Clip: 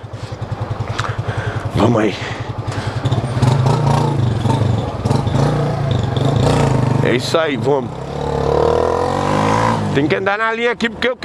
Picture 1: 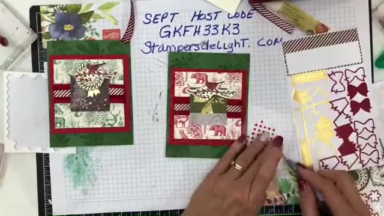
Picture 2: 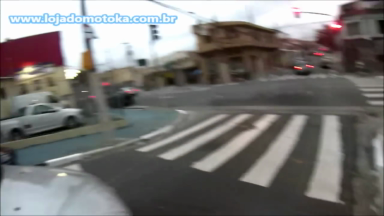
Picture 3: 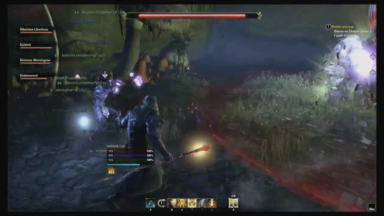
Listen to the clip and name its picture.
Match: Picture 2